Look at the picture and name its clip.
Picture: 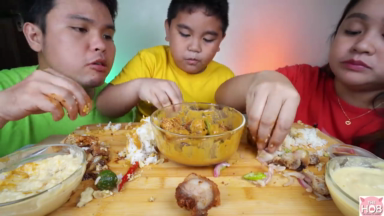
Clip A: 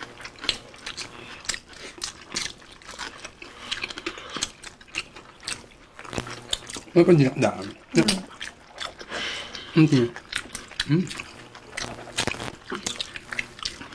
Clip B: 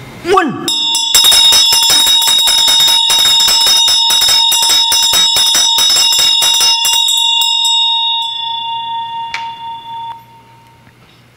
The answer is A